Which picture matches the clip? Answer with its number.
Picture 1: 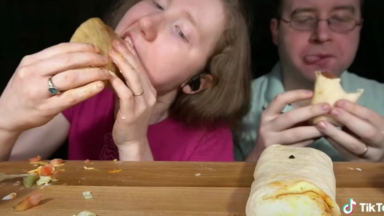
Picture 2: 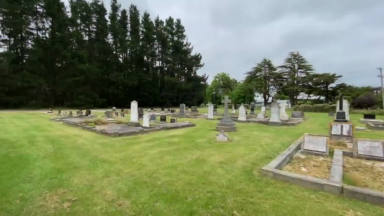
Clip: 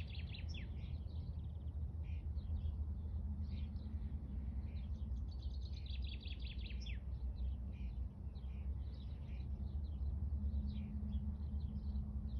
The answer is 2